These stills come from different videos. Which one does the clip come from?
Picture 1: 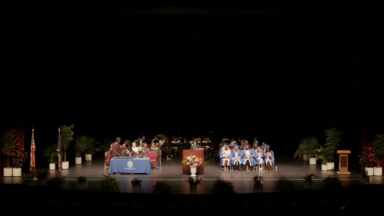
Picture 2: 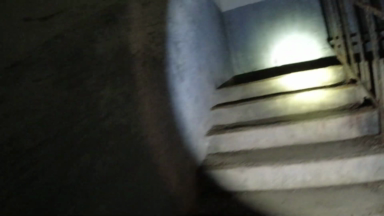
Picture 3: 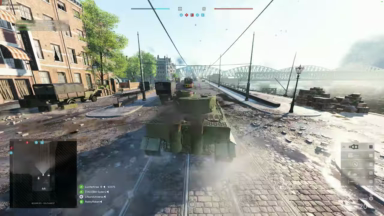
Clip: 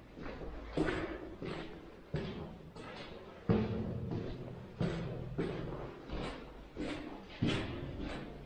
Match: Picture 2